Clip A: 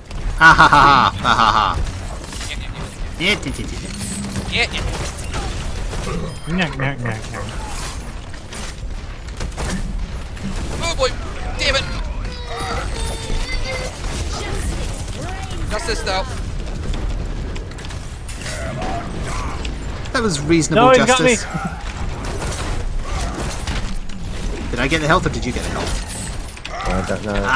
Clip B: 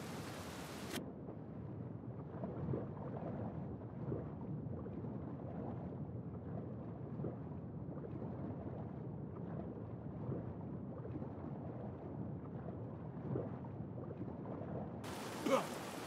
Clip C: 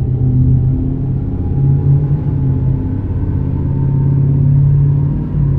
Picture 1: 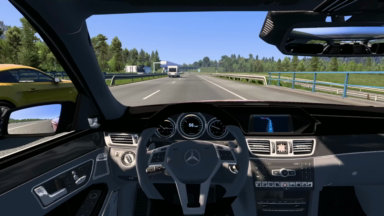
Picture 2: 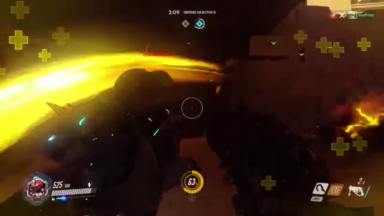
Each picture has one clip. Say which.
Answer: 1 C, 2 A